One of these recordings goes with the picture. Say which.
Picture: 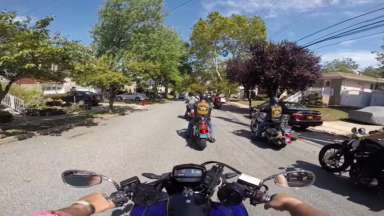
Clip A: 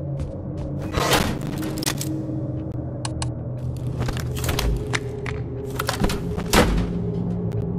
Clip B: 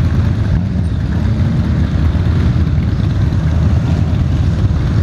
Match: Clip B